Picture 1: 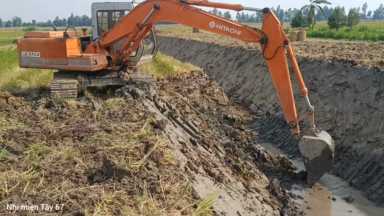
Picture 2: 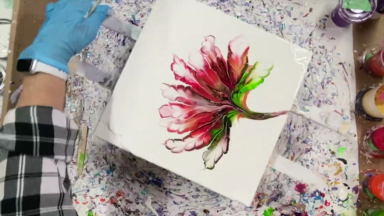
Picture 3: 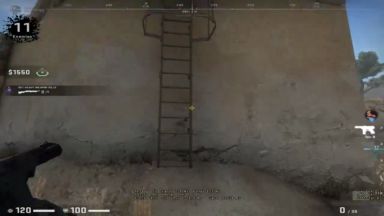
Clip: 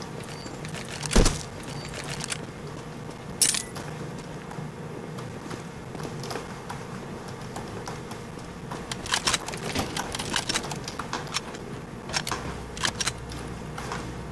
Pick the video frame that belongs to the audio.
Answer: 3